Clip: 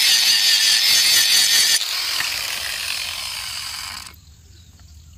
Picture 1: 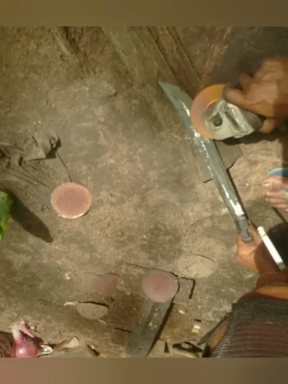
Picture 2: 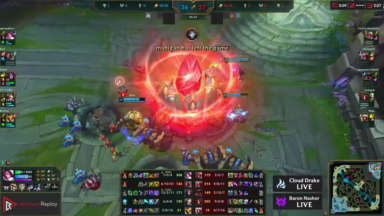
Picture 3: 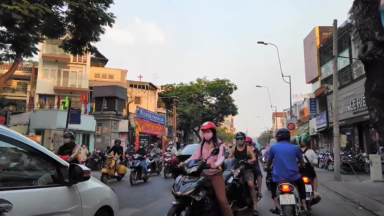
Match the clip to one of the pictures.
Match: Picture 1